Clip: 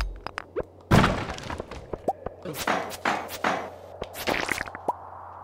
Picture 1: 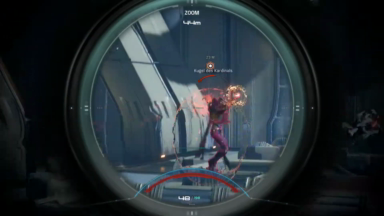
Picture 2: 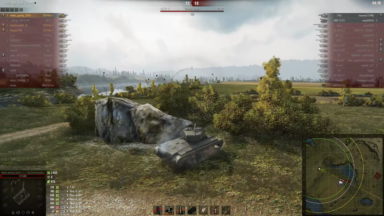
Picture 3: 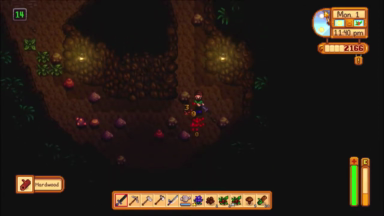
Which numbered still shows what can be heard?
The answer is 3